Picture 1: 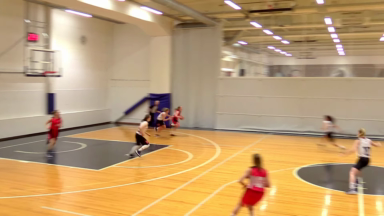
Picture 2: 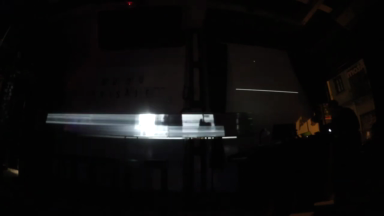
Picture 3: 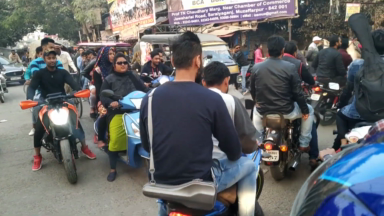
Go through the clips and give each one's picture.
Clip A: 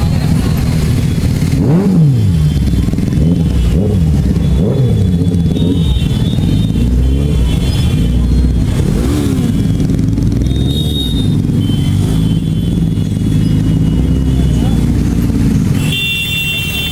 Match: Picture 3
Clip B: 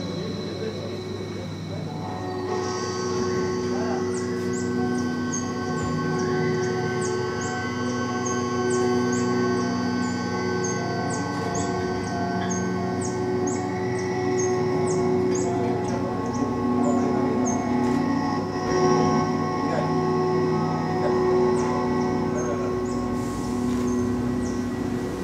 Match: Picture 2